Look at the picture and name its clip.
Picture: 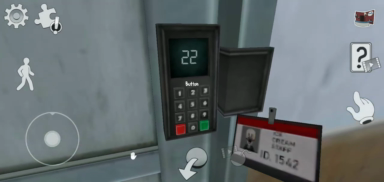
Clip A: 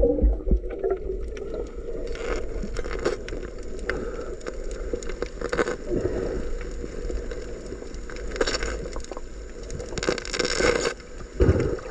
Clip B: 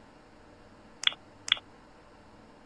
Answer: B